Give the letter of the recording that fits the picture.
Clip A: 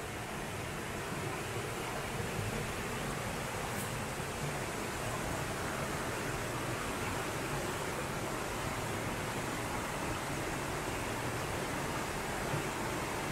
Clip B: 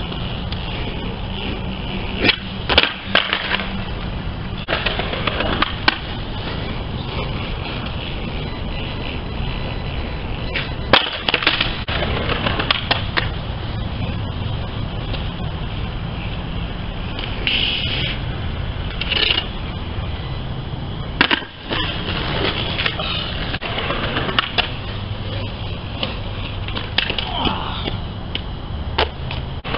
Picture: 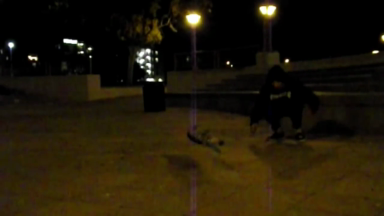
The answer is B